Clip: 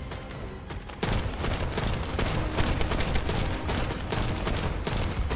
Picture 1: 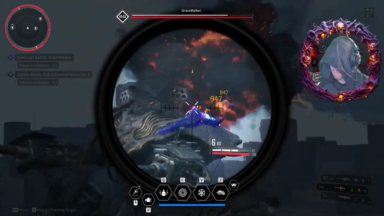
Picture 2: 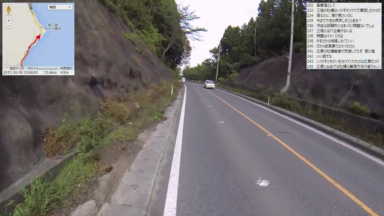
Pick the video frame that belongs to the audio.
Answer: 1